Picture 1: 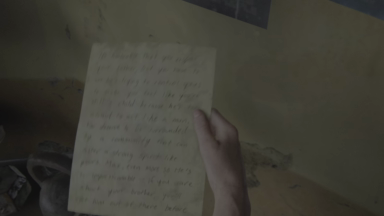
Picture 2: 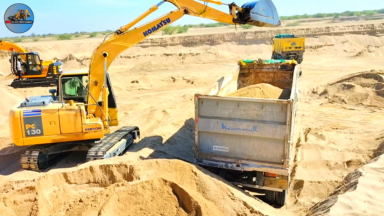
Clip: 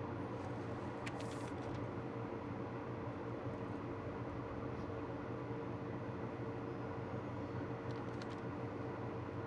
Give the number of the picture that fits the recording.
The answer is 1